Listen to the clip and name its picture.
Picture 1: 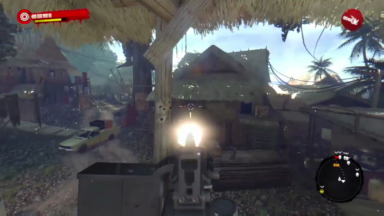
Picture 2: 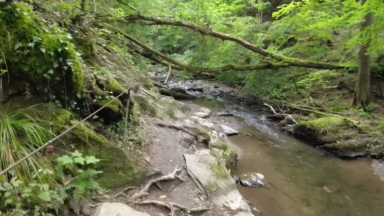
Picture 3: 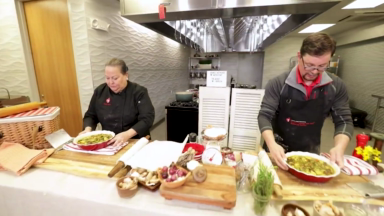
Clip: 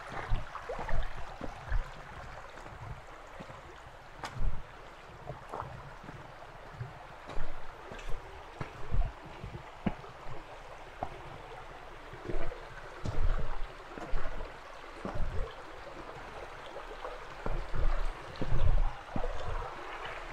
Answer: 2